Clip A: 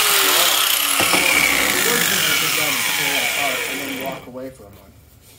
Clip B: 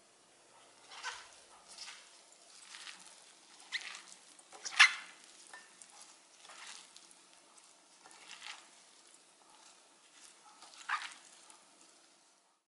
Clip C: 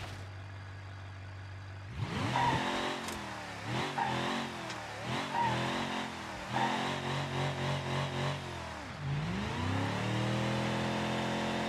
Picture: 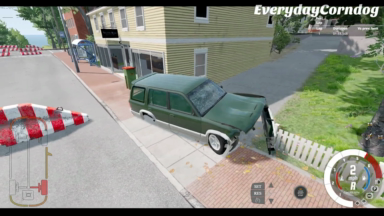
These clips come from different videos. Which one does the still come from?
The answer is C